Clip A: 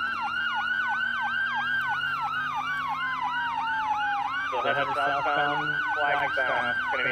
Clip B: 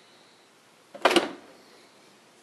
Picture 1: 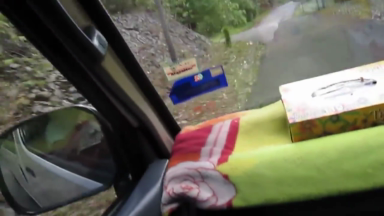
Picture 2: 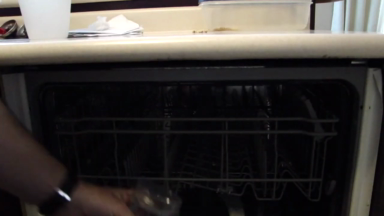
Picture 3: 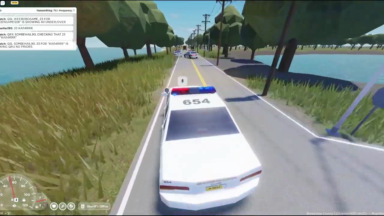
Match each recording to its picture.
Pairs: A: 3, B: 2